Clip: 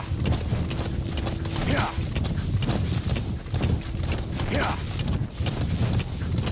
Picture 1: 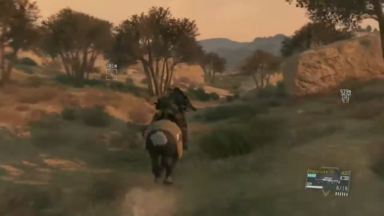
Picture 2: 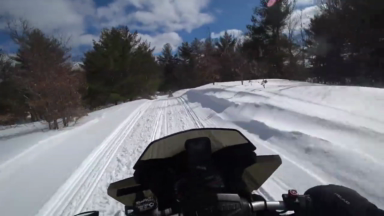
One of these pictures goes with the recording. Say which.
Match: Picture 1